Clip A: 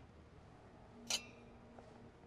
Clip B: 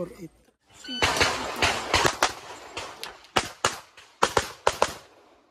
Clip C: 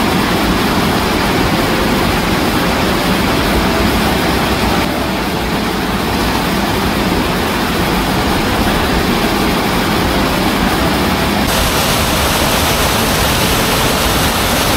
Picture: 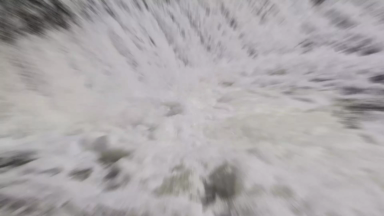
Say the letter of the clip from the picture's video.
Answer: C